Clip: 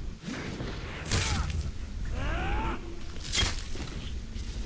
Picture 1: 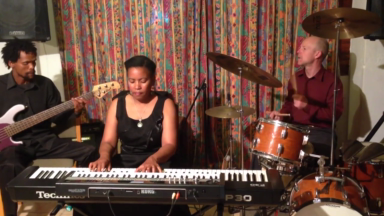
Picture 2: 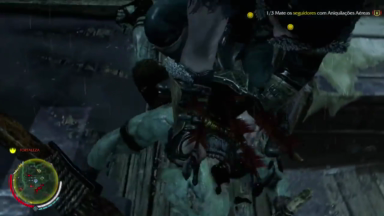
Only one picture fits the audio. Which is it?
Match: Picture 2